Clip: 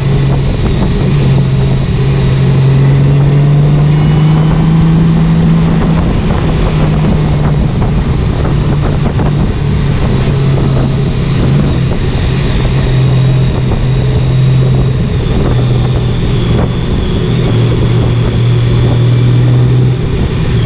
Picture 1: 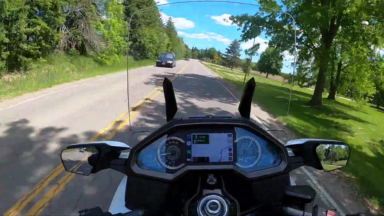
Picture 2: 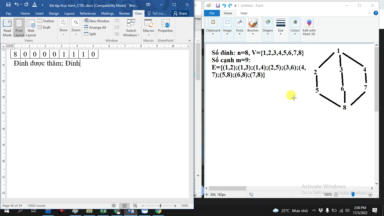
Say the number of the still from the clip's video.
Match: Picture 1